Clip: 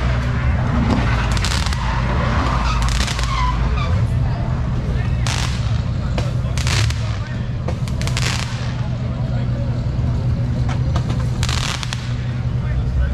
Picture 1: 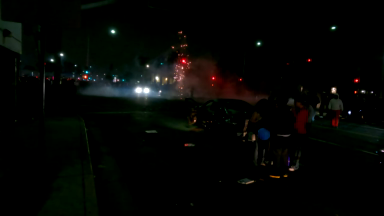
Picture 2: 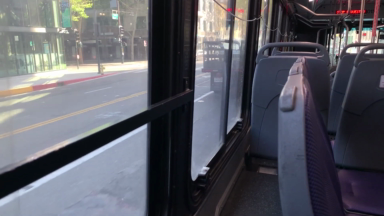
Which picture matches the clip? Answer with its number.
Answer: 1